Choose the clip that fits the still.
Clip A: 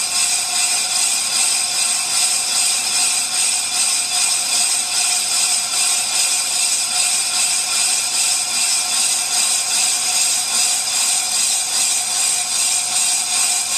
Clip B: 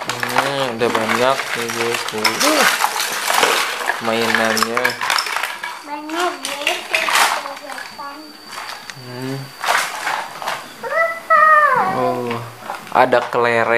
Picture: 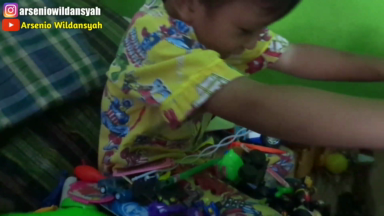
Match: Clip B